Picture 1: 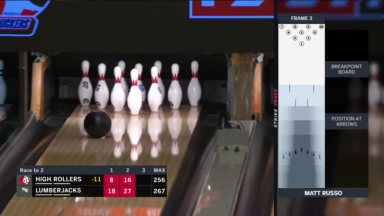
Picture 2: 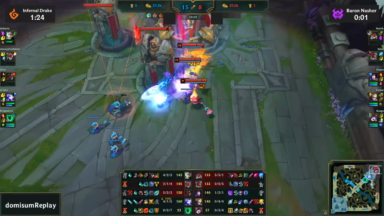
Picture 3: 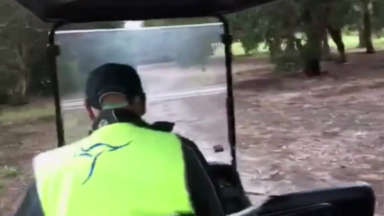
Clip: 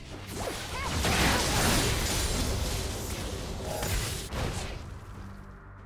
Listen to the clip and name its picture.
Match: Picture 2